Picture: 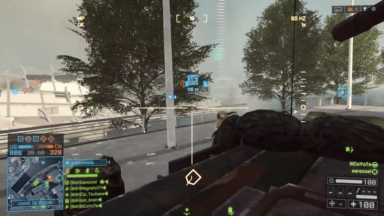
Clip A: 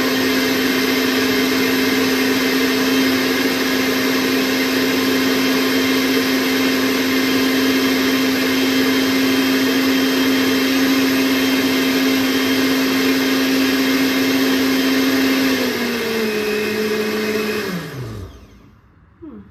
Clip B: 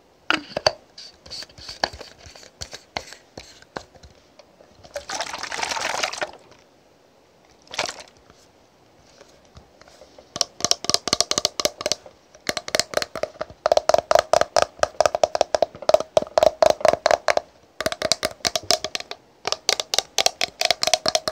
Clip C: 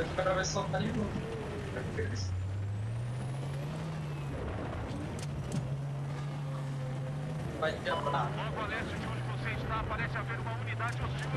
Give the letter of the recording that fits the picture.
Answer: C